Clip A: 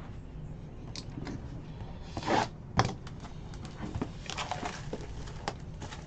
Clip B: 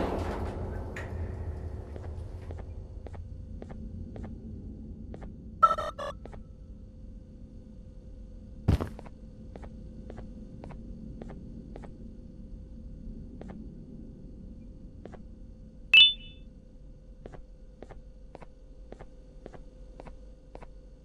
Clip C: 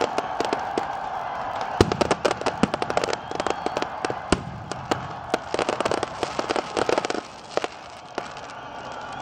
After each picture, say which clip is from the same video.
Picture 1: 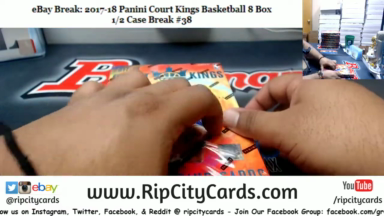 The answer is A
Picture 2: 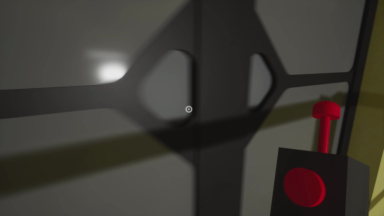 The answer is B